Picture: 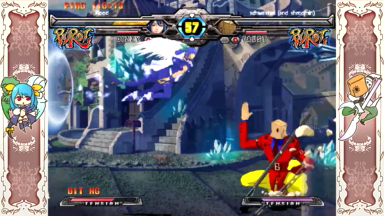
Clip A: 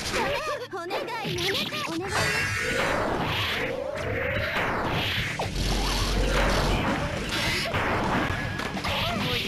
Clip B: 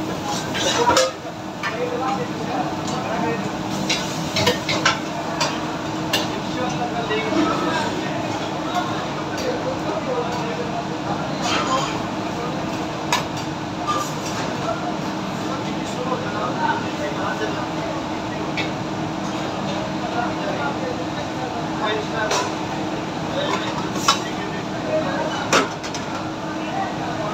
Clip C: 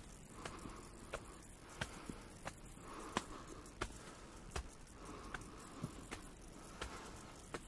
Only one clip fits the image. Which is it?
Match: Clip A